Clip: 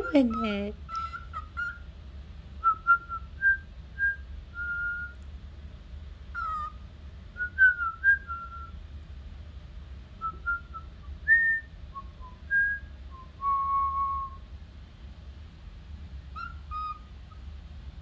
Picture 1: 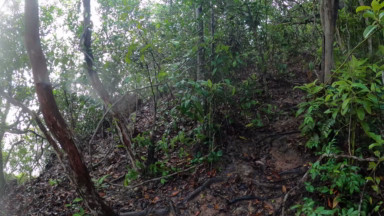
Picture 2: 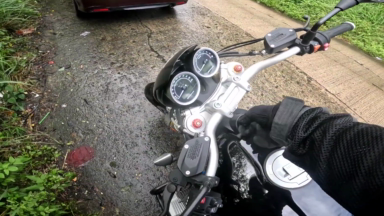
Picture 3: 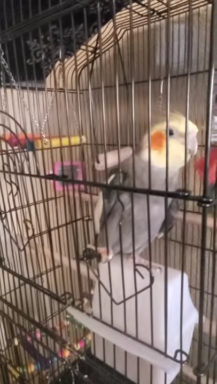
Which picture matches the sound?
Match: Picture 3